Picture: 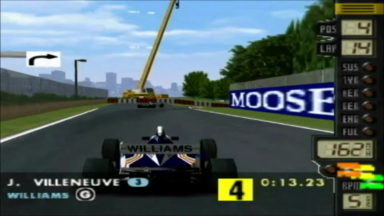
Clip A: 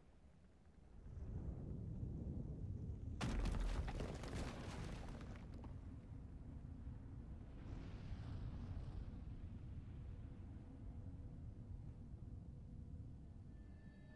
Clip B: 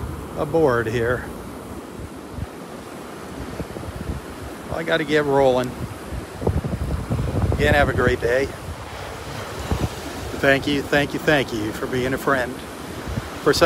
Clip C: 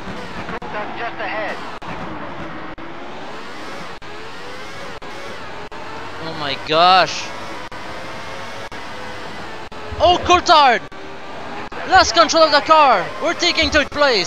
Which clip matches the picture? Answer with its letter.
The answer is C